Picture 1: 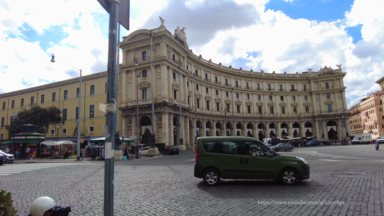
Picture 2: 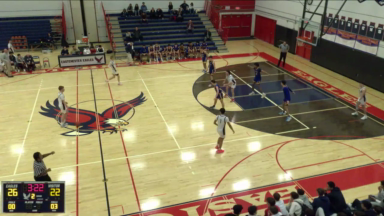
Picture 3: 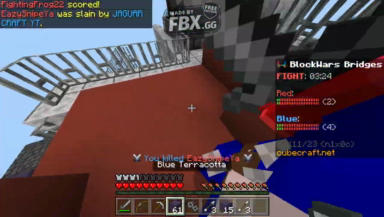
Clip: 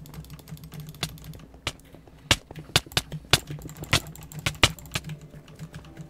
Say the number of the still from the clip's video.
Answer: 3